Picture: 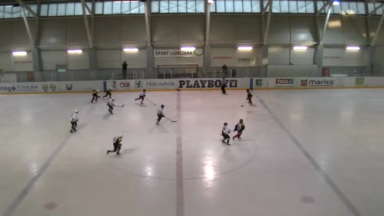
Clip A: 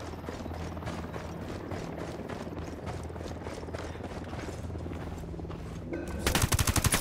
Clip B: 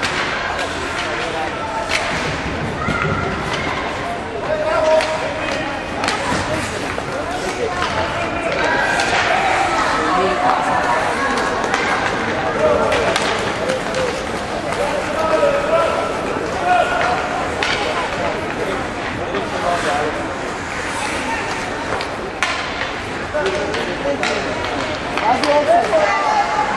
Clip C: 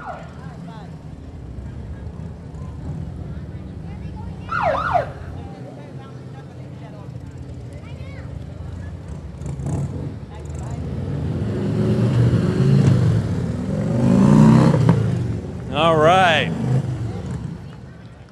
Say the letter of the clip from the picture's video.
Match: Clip B